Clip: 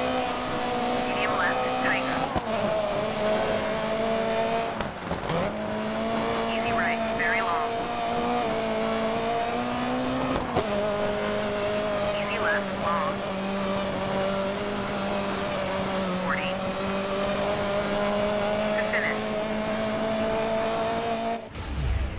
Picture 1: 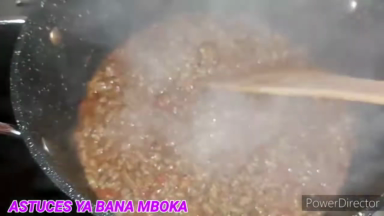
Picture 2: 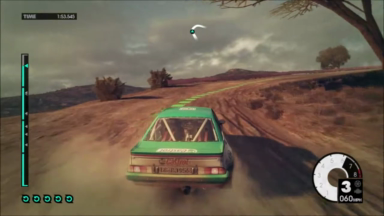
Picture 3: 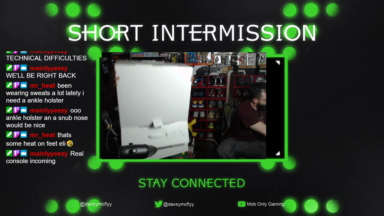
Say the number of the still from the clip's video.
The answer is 2